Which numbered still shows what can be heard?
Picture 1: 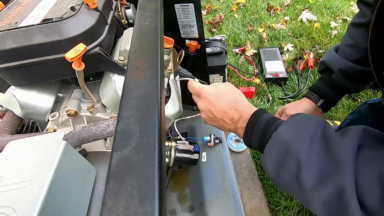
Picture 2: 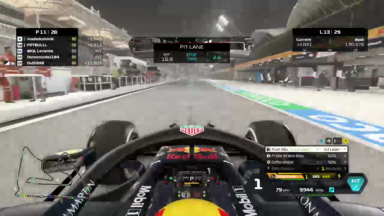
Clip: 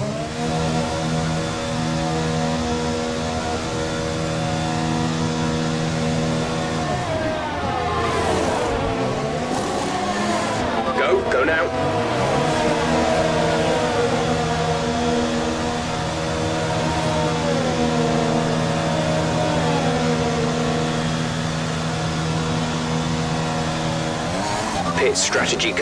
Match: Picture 2